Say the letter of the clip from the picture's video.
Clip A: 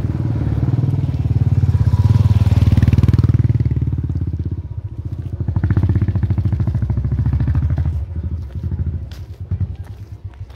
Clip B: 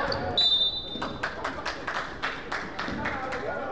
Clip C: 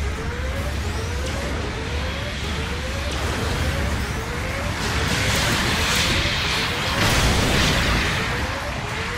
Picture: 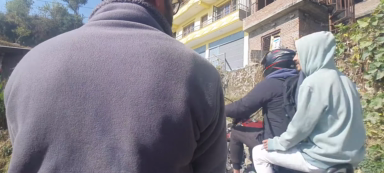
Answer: A